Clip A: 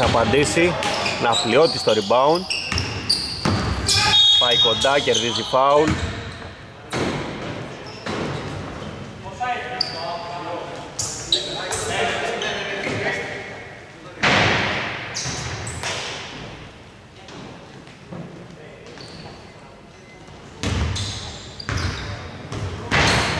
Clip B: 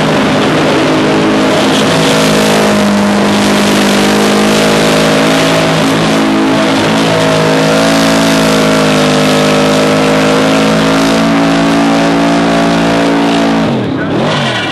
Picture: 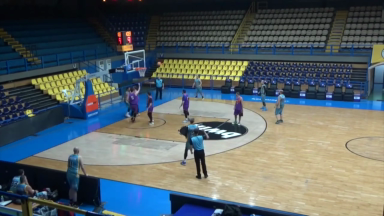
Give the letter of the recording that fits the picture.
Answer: A